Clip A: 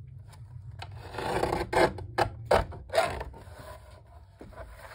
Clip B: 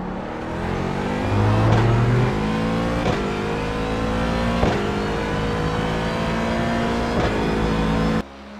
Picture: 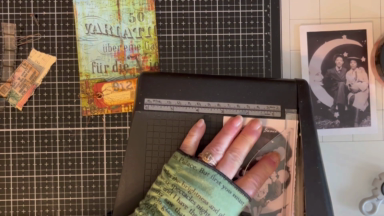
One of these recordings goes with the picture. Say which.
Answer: A